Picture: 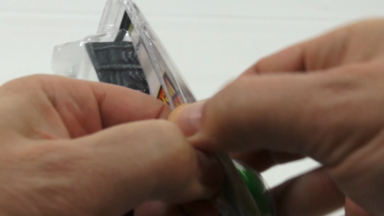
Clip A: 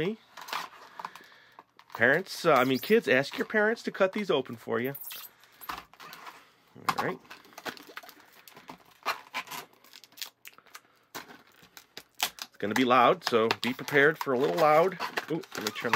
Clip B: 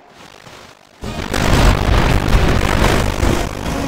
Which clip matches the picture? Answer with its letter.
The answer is A